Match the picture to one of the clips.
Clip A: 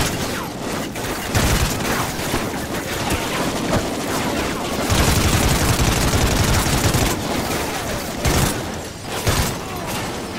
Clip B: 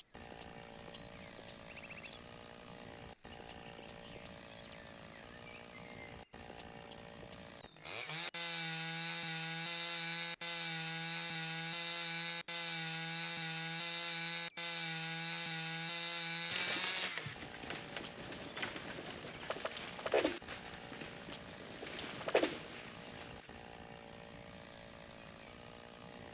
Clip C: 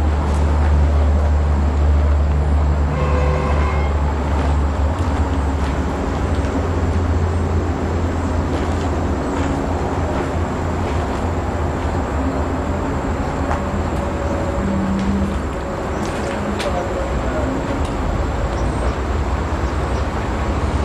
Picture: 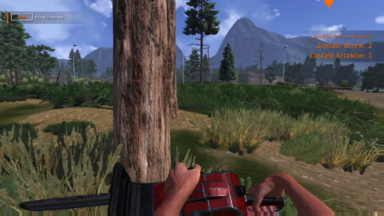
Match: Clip B